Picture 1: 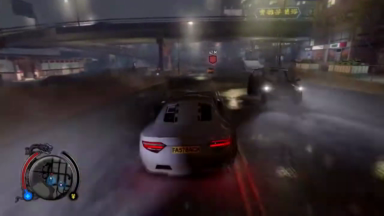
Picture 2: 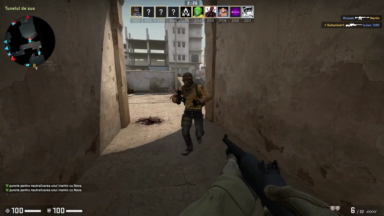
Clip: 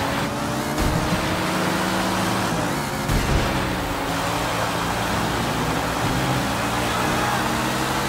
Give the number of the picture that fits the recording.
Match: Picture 1